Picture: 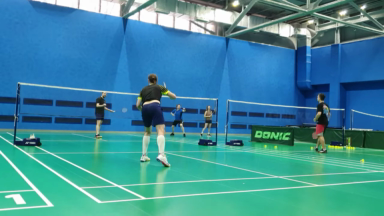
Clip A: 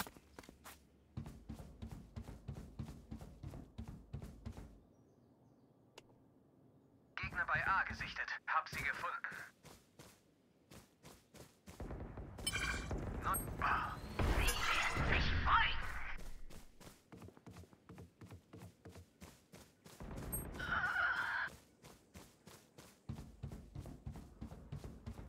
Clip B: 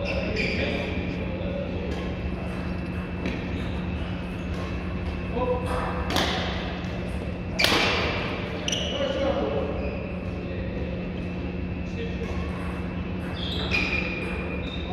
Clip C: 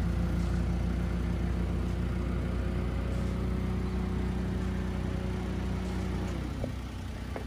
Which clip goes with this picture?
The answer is B